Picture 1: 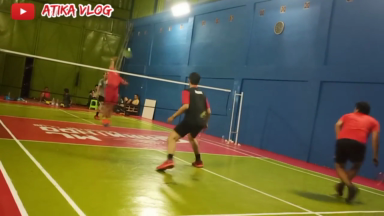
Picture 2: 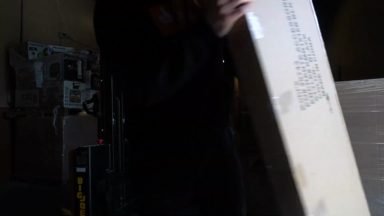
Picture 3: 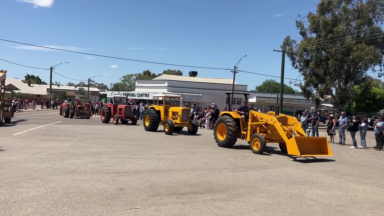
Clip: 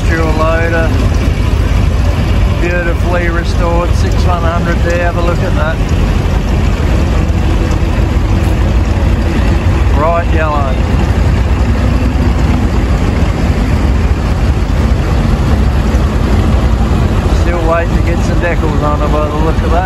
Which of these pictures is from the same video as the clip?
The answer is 3